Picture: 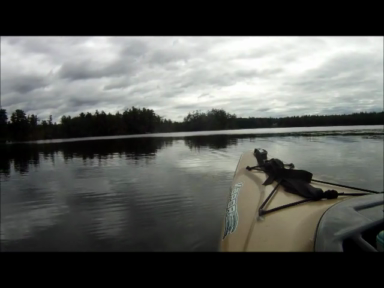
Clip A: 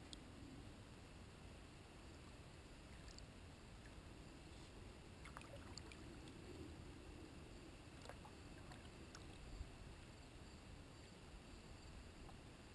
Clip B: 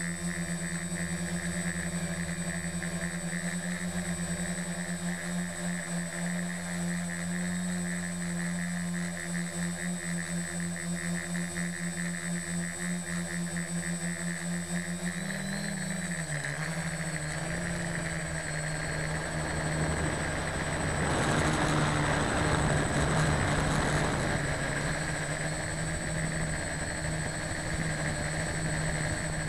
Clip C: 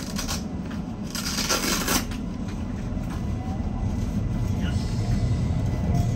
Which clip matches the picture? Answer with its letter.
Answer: A